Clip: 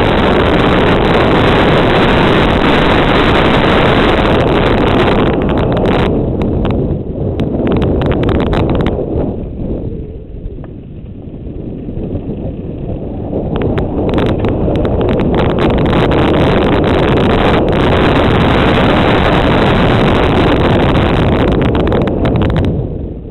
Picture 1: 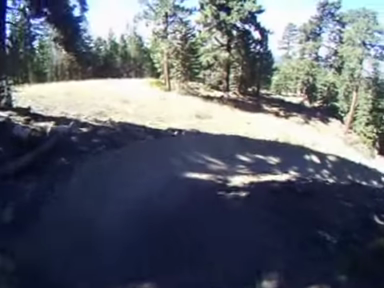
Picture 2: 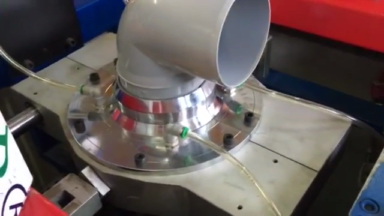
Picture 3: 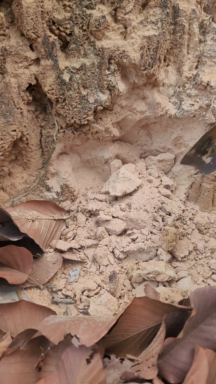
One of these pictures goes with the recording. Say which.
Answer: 1